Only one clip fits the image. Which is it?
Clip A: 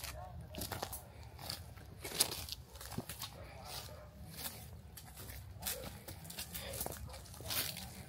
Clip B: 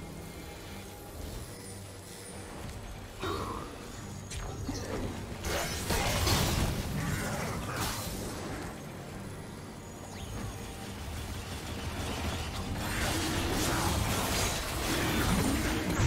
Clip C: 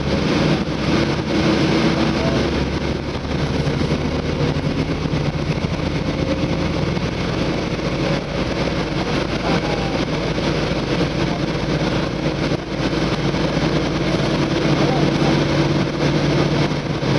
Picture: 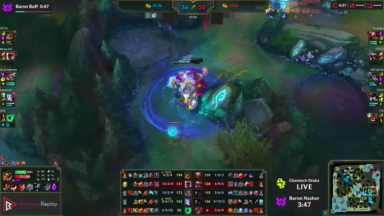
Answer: B